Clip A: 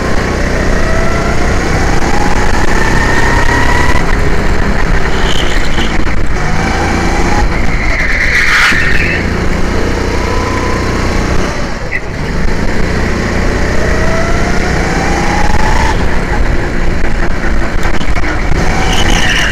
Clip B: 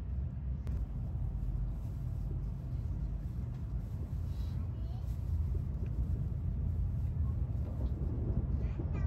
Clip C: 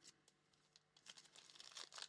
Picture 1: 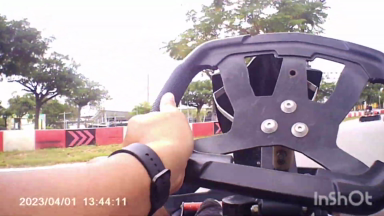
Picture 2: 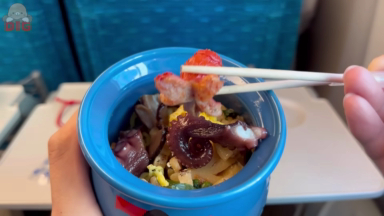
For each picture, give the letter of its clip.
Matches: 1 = A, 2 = B